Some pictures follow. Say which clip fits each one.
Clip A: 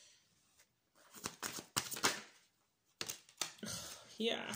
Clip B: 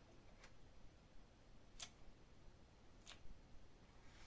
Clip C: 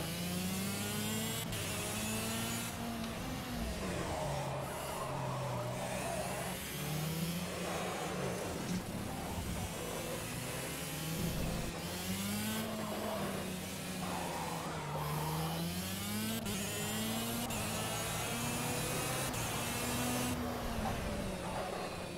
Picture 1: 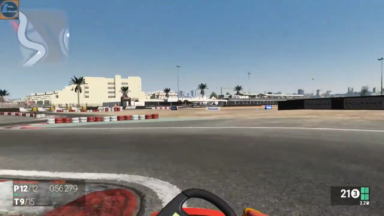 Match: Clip C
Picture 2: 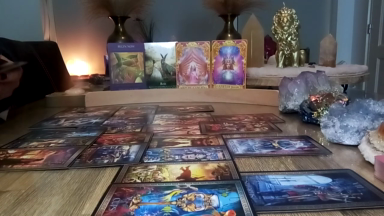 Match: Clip A